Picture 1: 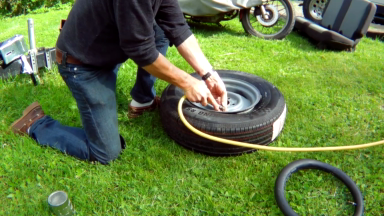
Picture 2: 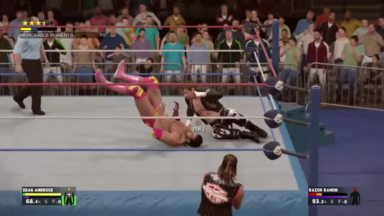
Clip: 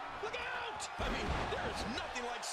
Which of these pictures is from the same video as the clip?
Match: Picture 2